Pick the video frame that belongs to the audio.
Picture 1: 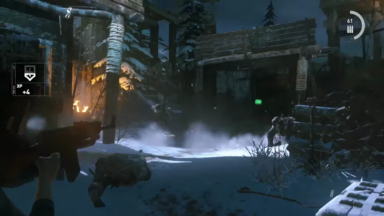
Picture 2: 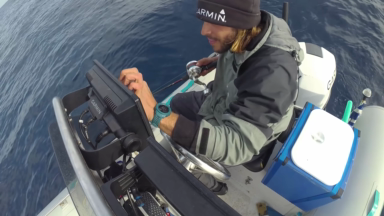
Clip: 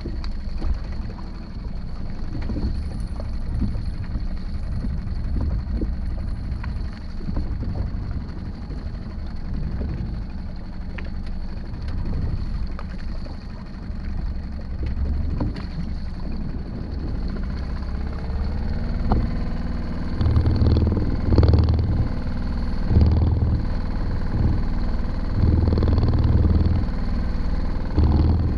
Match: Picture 2